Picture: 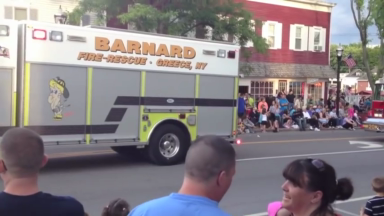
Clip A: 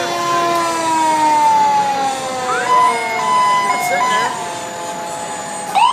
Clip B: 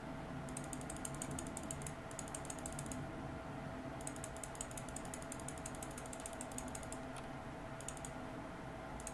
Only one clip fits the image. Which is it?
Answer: A